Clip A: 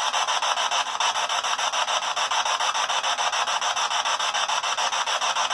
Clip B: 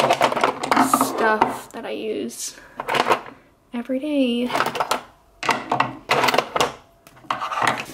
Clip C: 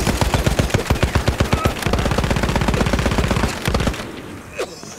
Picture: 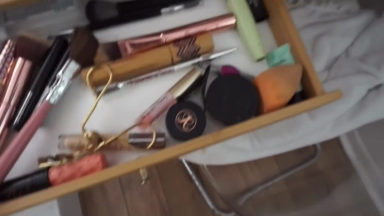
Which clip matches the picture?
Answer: B